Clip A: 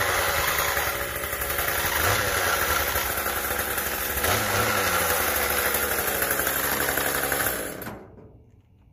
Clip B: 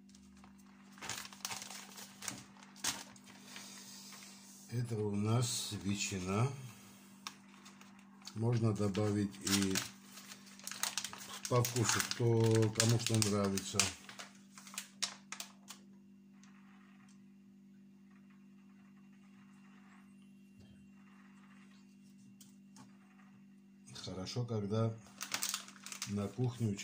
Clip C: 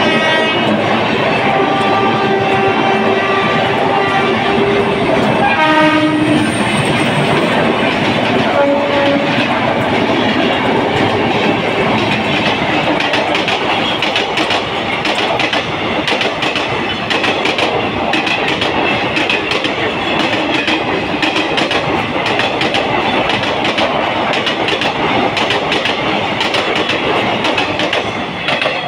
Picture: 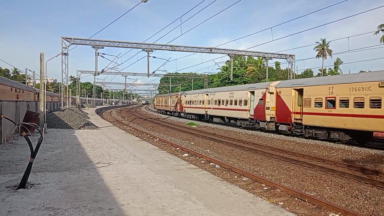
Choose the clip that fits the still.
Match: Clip C